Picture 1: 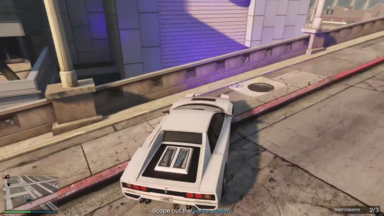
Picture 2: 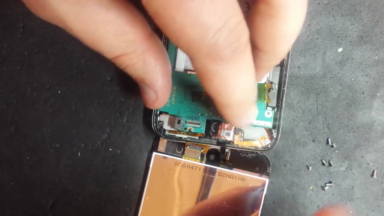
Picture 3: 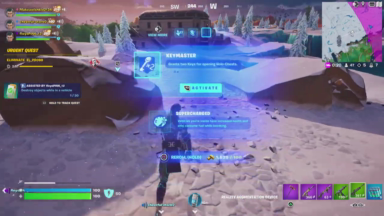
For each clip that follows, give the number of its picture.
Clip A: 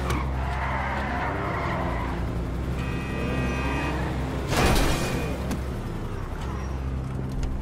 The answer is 1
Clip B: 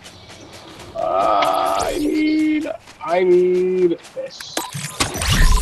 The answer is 3